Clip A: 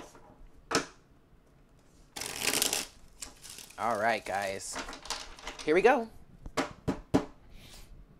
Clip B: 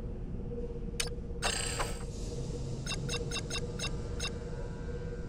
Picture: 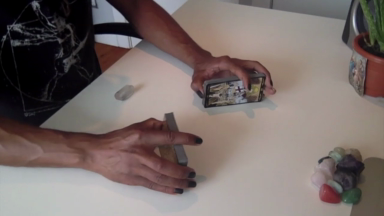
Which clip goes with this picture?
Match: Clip A